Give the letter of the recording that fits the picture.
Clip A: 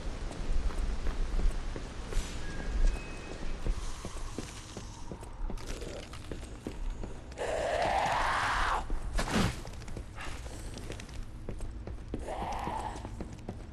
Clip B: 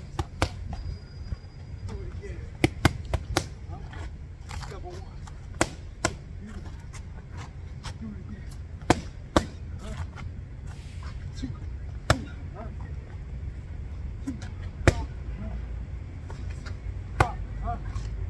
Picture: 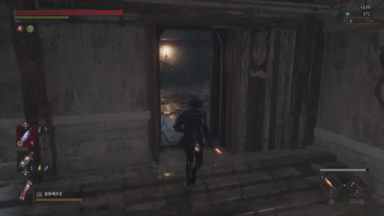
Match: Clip A